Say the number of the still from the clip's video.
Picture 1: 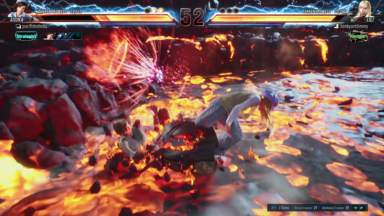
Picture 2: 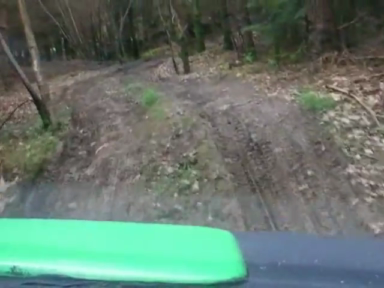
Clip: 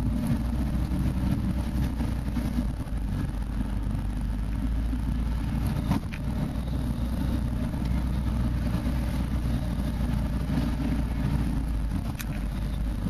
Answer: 2